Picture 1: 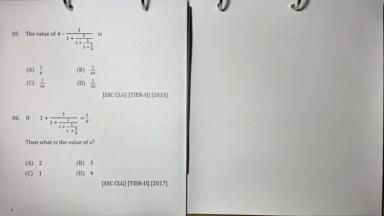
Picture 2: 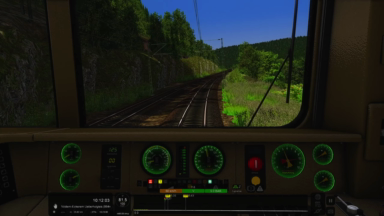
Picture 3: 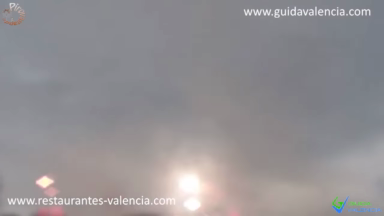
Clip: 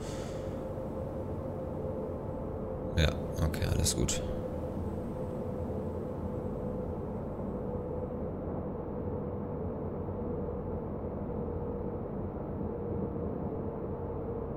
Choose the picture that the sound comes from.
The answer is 2